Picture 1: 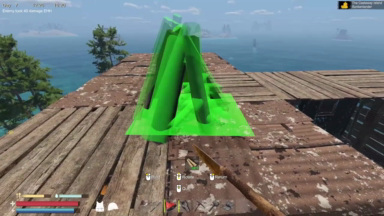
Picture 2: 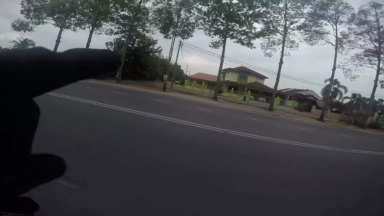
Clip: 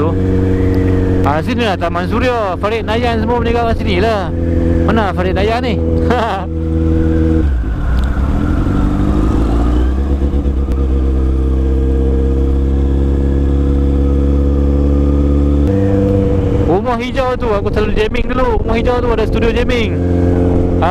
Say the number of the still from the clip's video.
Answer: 2